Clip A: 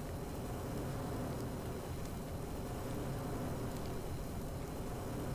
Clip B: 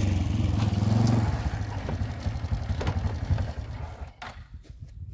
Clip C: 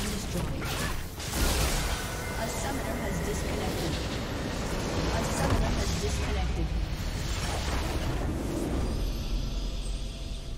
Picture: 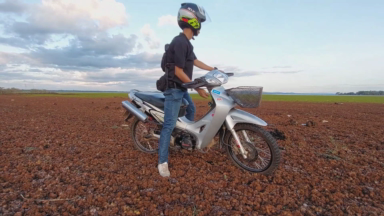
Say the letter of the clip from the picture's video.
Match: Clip B